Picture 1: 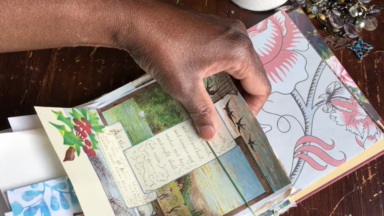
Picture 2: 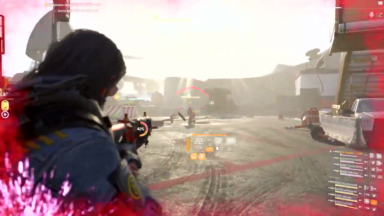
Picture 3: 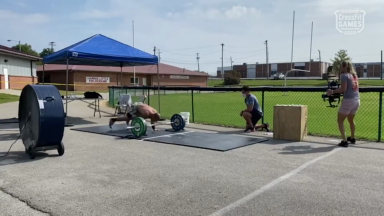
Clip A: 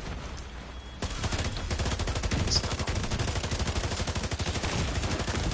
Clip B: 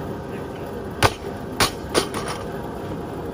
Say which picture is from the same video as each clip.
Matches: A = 2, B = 3